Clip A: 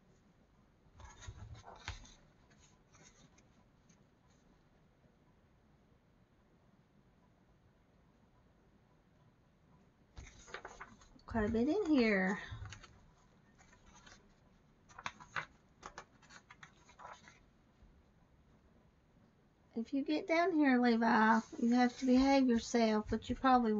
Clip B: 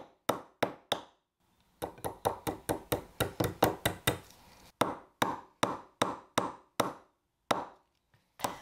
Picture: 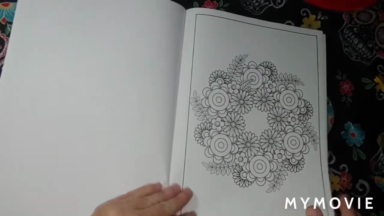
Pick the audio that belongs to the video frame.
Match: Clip A